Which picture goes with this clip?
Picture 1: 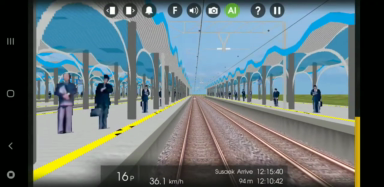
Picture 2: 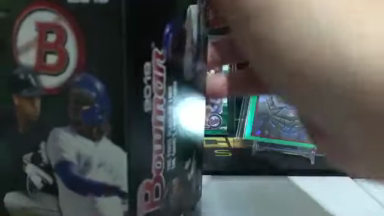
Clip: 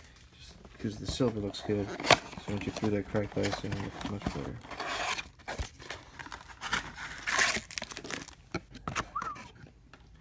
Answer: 2